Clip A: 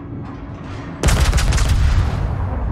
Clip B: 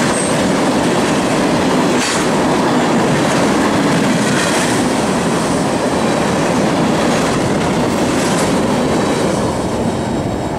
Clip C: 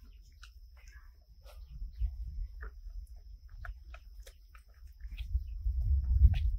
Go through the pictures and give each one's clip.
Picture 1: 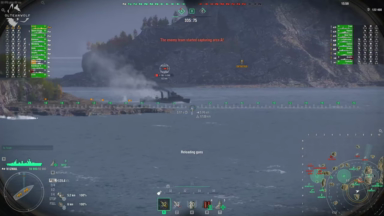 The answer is A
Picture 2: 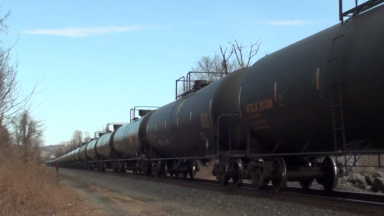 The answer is B